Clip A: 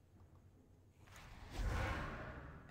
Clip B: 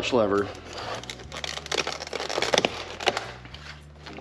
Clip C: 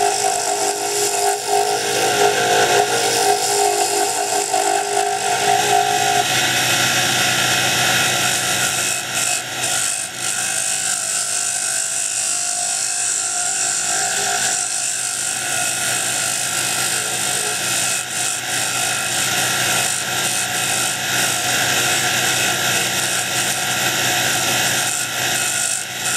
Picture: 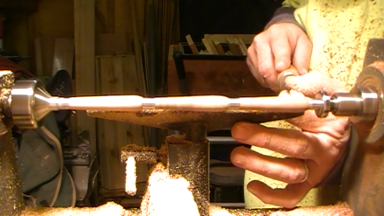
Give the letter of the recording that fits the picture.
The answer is C